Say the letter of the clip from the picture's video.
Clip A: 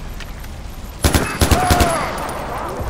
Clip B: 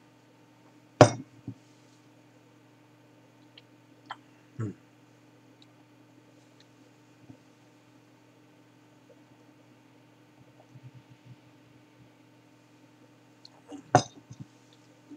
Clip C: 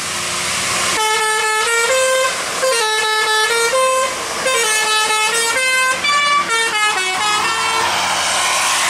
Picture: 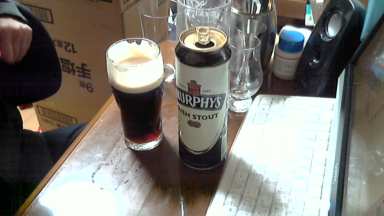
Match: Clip B